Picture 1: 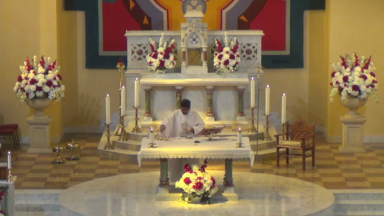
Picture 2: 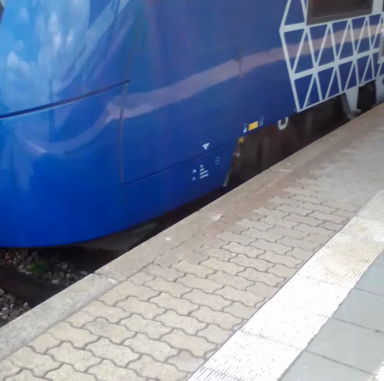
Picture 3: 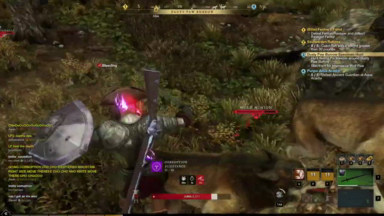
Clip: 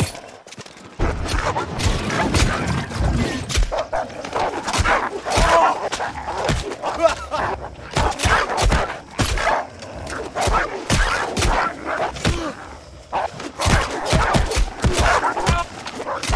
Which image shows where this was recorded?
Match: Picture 3